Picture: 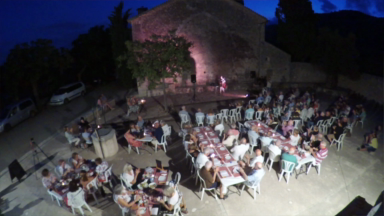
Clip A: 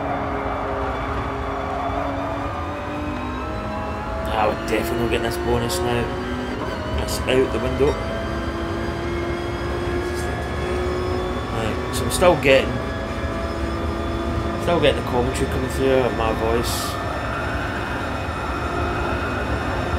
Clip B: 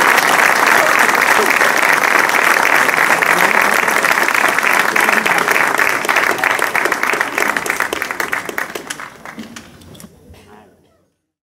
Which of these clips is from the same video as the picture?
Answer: B